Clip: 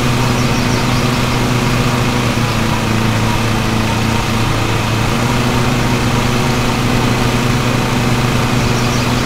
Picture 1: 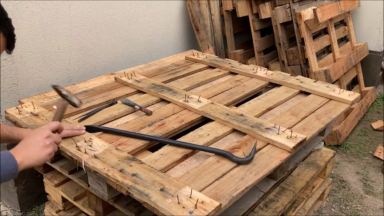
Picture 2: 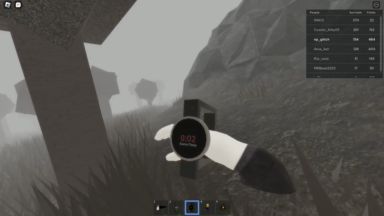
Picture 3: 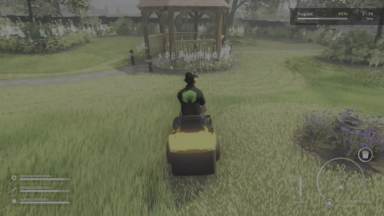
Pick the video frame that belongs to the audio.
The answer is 3